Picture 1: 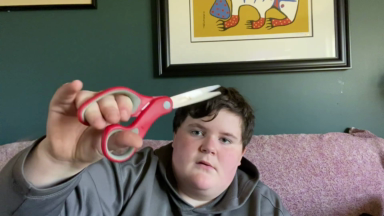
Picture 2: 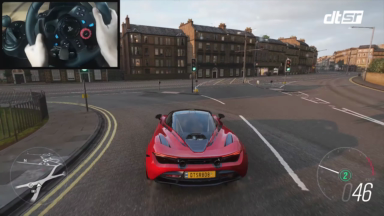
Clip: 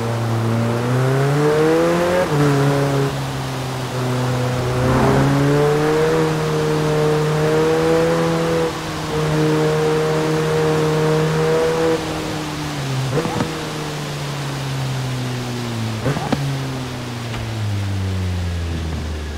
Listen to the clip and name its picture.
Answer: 2